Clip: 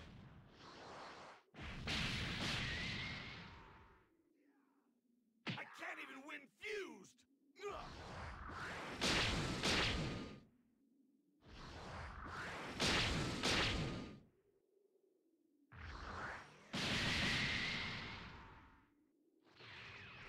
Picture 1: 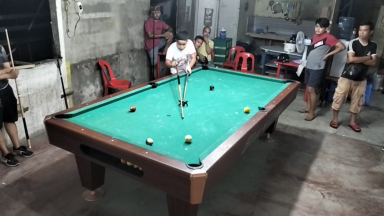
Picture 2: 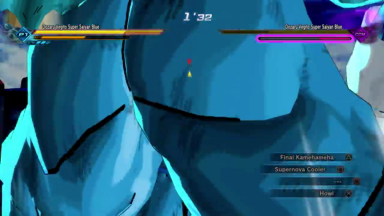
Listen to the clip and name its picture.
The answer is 2